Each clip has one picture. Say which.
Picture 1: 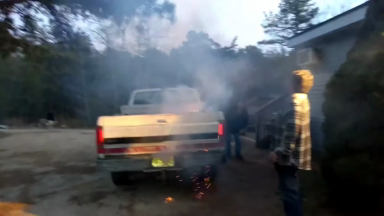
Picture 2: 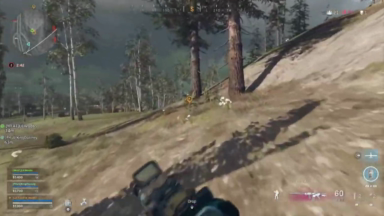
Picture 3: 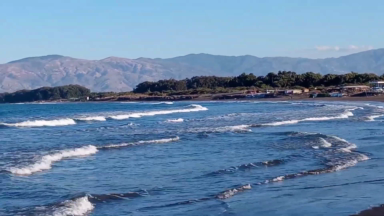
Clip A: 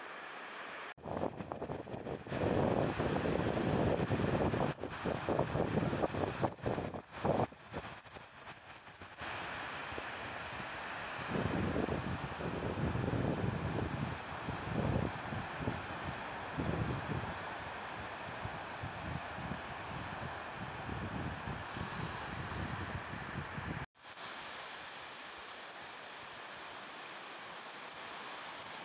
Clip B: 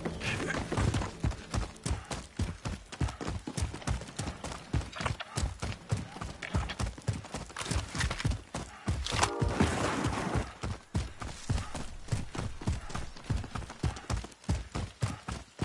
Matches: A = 3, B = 2